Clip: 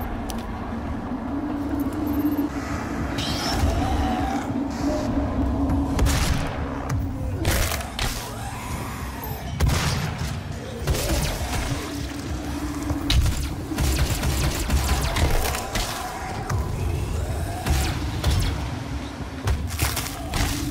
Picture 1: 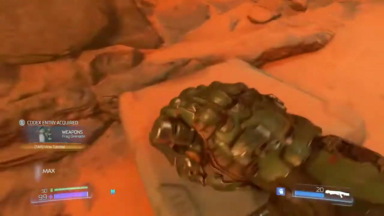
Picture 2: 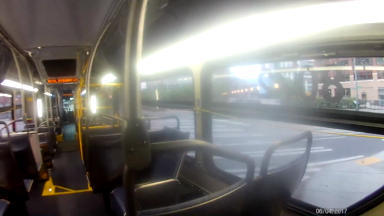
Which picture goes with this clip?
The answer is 1